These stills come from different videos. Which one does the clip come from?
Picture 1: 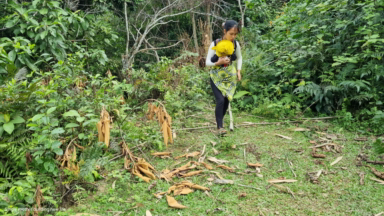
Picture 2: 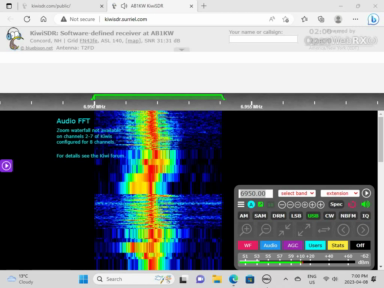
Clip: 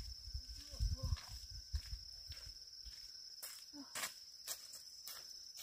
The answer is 1